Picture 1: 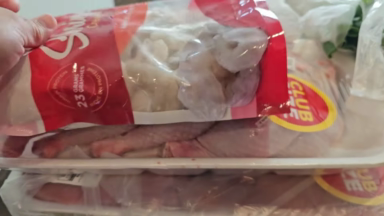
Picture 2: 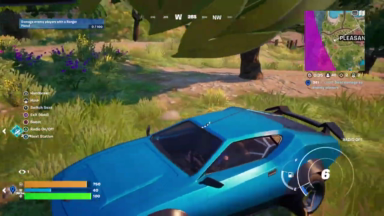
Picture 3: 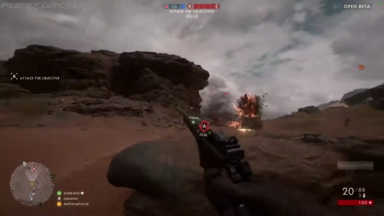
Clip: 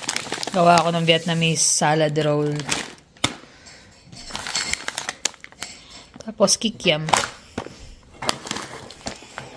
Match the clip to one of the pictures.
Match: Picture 1